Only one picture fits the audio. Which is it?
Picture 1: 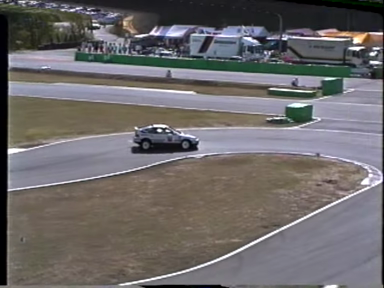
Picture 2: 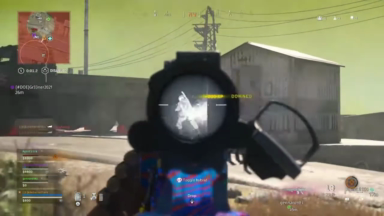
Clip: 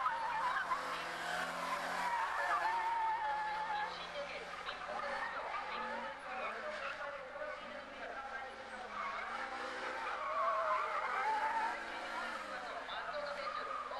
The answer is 1